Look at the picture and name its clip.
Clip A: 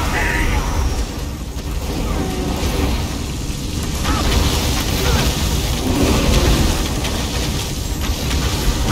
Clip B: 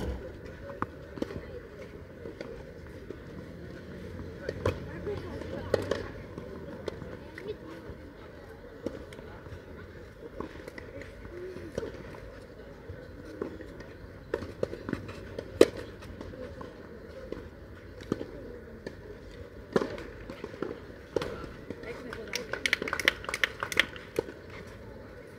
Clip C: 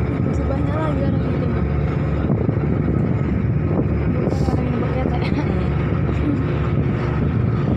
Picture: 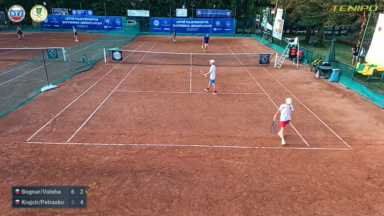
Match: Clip B